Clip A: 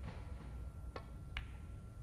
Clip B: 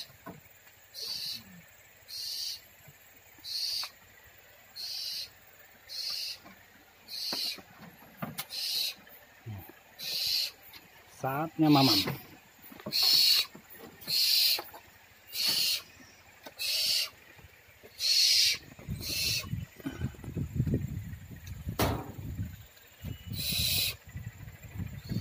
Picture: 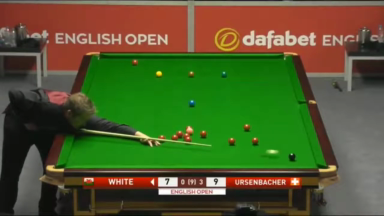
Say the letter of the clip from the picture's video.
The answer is A